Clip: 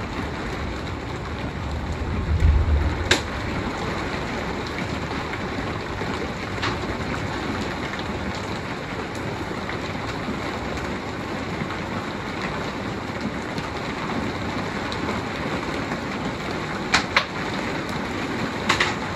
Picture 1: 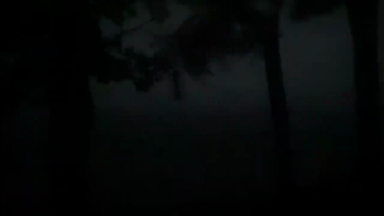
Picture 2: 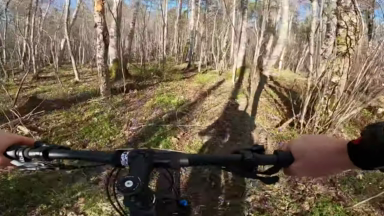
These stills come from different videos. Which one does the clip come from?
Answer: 1